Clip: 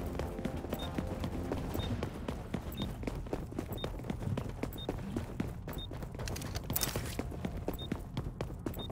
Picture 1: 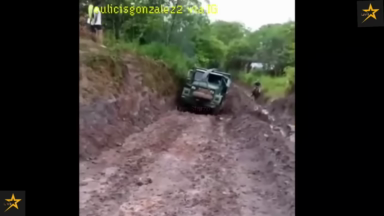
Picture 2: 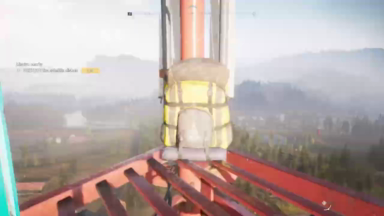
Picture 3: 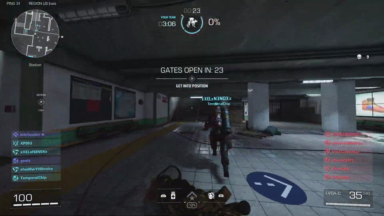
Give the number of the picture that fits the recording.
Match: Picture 3